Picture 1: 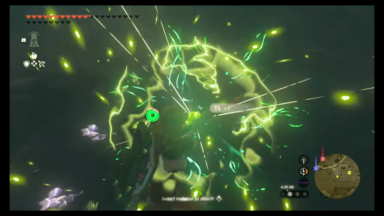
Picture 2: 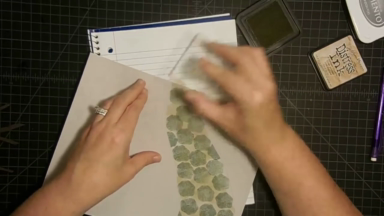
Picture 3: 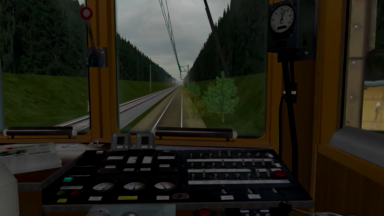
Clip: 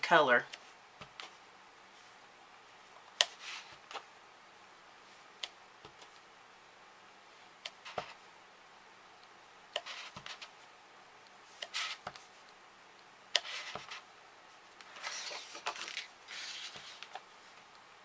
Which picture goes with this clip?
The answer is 2